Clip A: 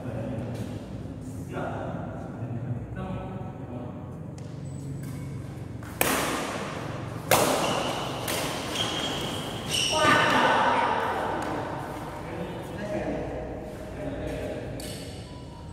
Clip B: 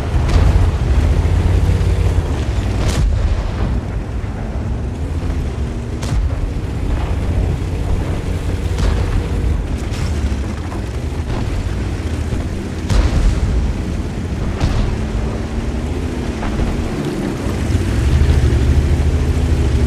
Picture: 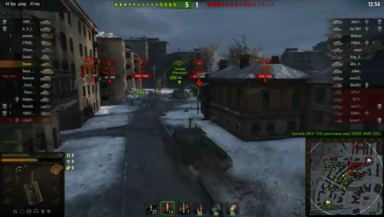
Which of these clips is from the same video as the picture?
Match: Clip B